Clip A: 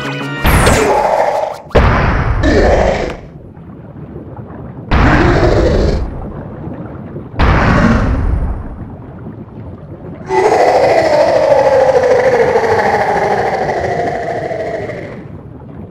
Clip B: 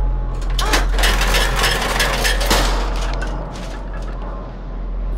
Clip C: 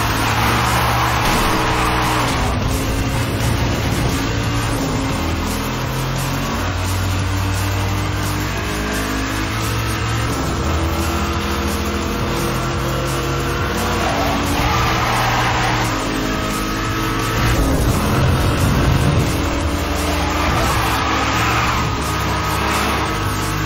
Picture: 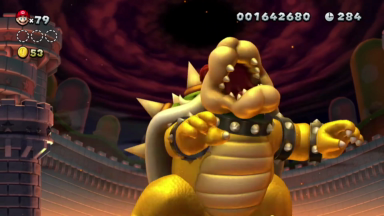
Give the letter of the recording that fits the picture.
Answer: A